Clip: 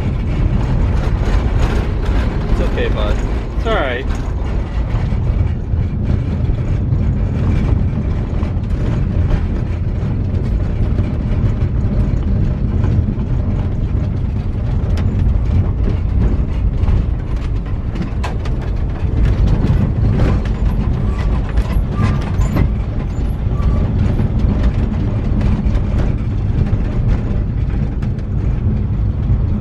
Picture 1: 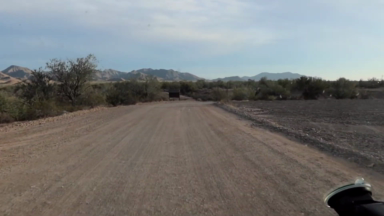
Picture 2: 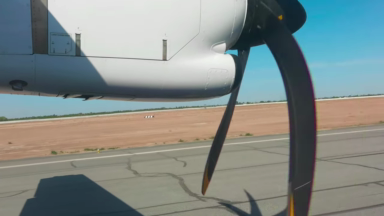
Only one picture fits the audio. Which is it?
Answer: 1